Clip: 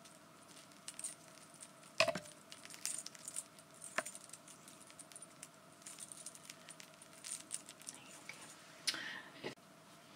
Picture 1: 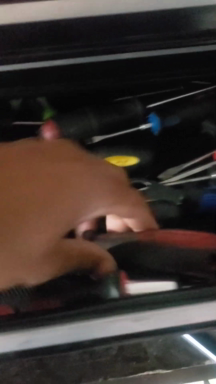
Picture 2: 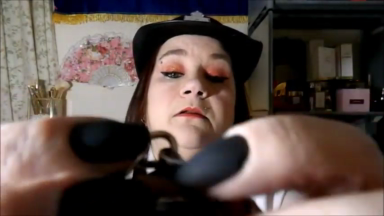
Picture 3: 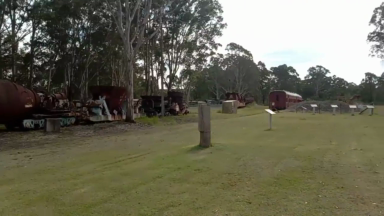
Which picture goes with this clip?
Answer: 2